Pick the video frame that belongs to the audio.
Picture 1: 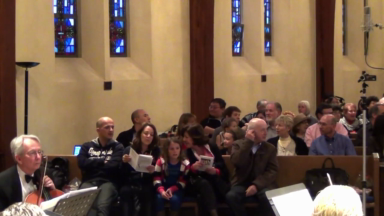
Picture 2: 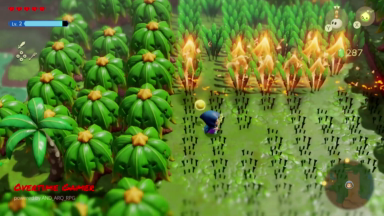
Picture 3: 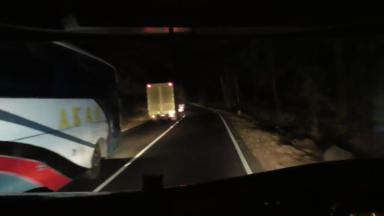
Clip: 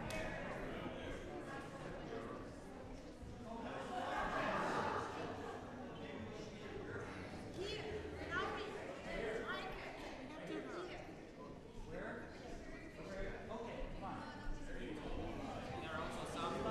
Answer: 1